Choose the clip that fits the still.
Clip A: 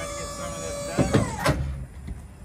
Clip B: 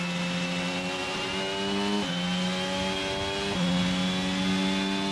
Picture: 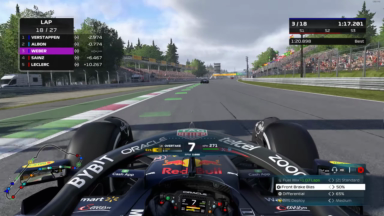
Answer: B